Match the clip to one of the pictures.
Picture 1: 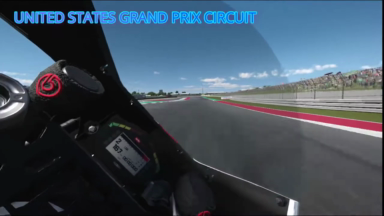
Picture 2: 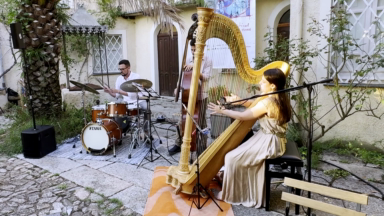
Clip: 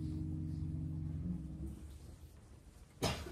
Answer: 2